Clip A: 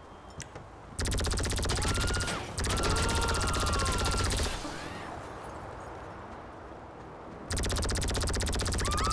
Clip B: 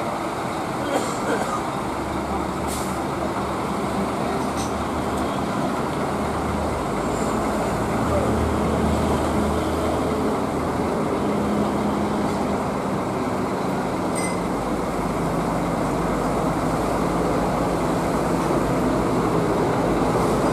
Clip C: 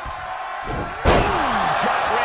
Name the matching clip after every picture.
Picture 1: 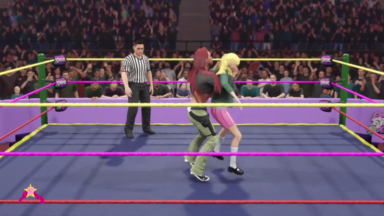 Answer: C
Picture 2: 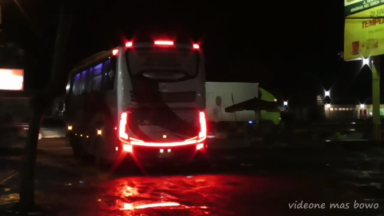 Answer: B